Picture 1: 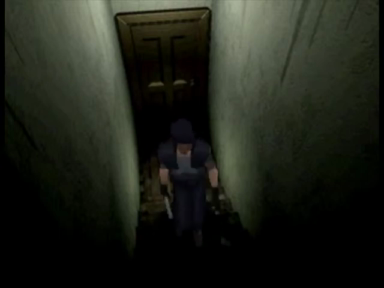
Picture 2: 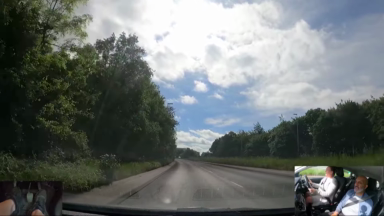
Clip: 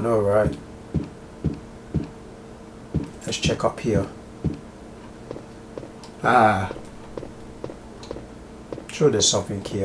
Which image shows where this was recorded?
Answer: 1